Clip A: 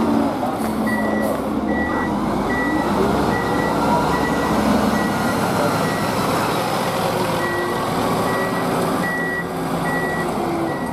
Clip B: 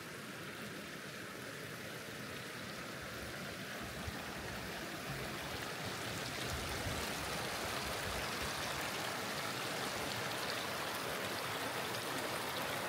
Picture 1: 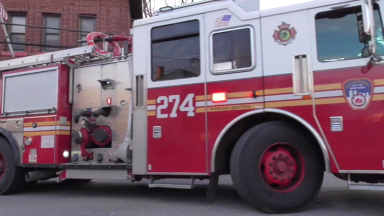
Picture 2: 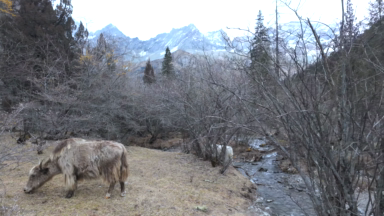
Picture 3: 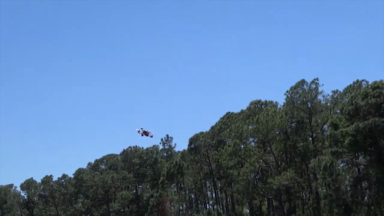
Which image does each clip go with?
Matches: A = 1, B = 2